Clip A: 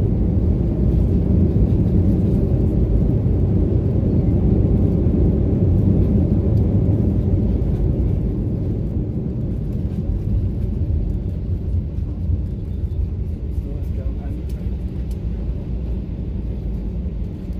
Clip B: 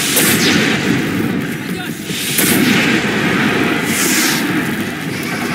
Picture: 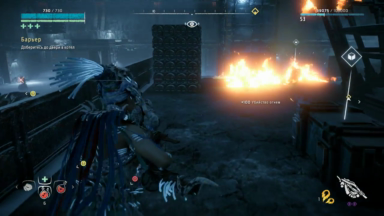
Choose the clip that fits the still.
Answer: B